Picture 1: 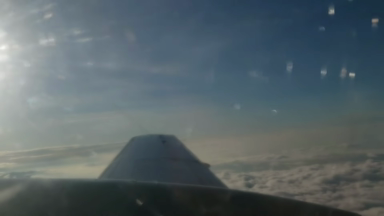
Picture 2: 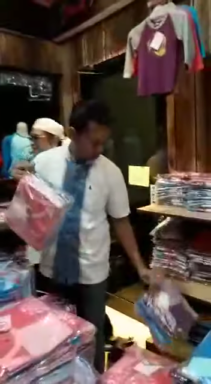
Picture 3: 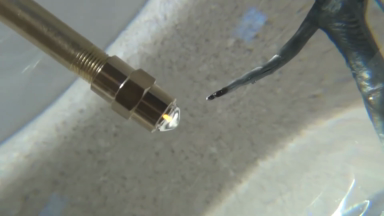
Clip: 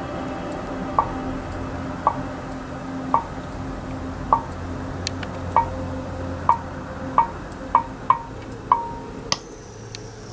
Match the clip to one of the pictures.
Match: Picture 3